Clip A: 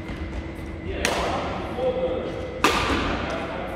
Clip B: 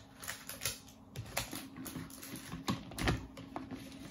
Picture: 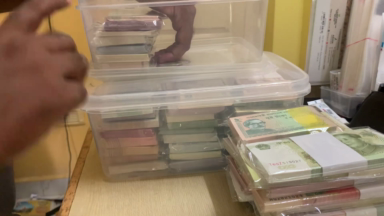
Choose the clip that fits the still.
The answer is B